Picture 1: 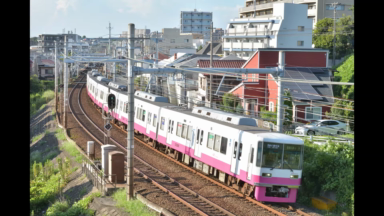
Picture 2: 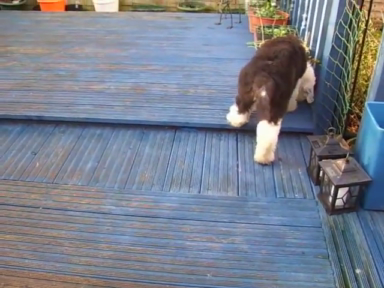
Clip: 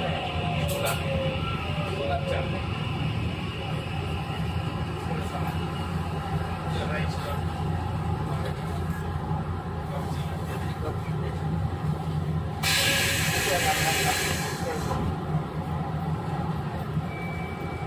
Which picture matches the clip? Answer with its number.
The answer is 1